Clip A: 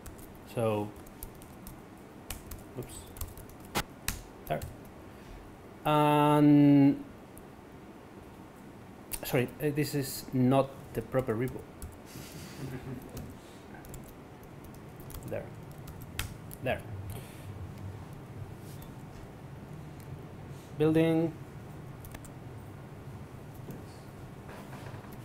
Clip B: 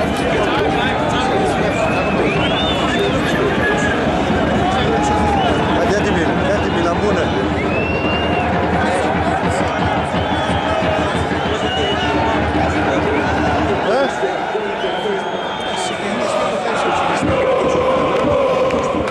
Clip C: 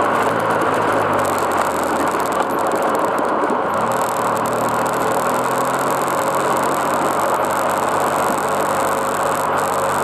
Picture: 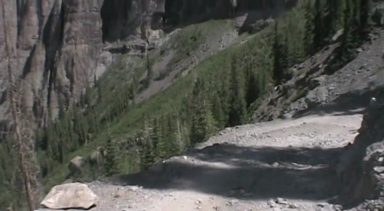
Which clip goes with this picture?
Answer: C